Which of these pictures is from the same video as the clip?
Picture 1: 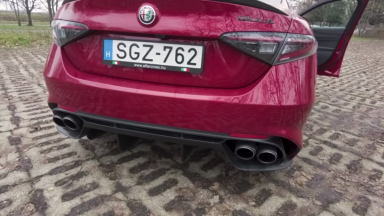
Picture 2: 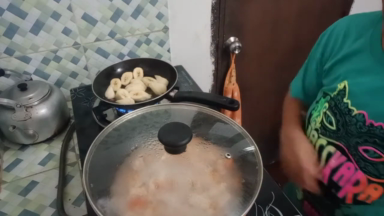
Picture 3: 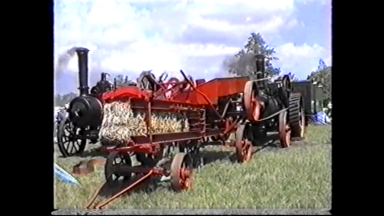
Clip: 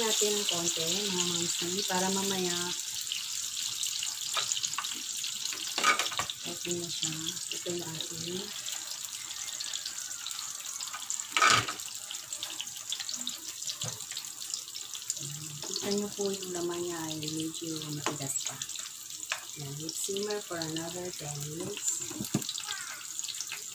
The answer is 2